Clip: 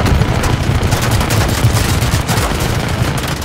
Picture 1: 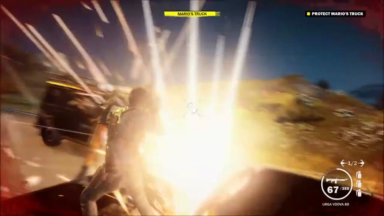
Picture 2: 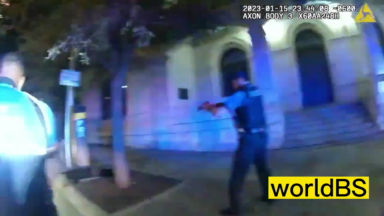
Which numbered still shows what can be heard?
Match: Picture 1